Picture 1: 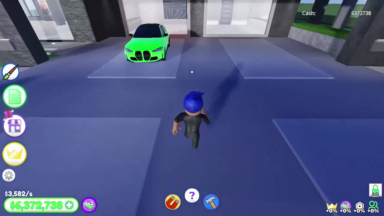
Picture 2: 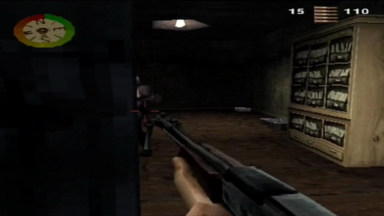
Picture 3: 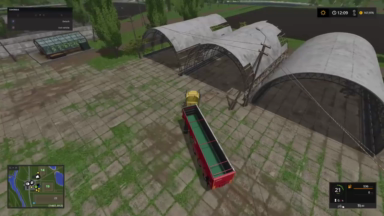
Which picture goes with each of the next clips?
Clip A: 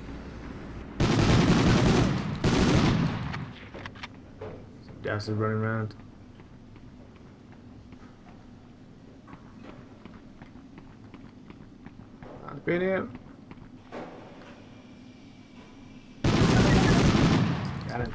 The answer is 2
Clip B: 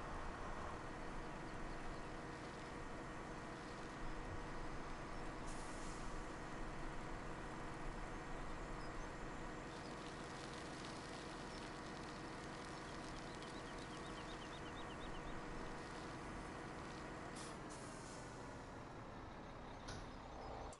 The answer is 3